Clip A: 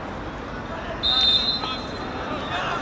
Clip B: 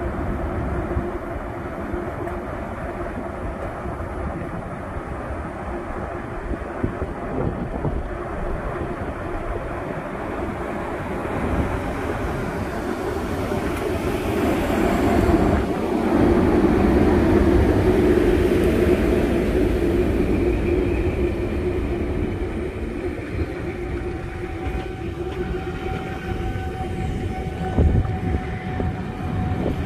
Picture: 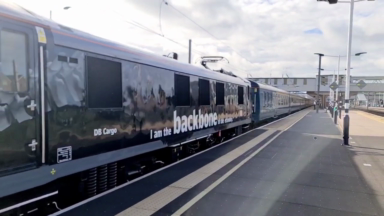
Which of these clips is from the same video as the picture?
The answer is B